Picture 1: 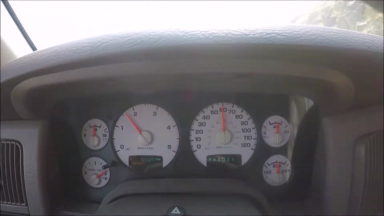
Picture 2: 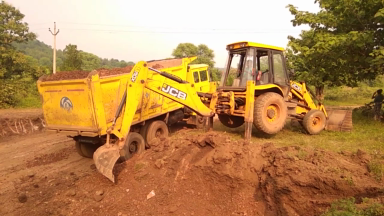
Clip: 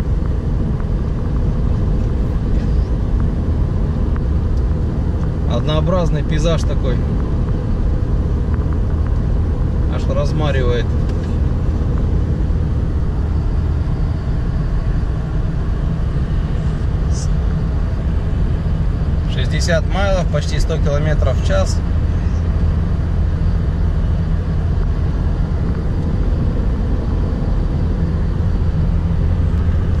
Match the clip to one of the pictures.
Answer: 1